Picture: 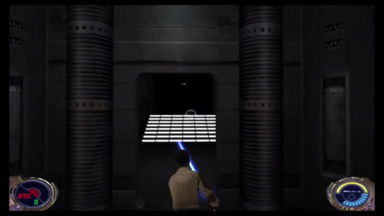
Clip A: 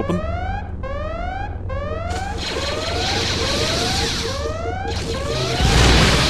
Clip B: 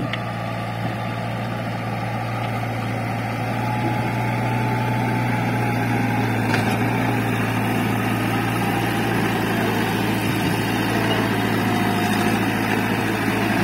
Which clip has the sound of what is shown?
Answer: A